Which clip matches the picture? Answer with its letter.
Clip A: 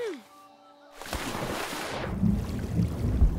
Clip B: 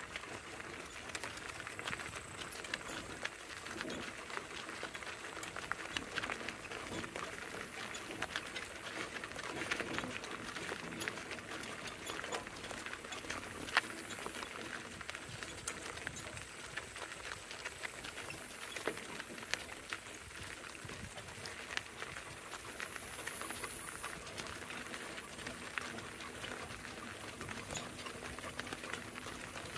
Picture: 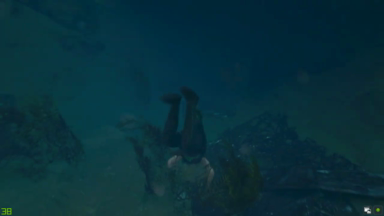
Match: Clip A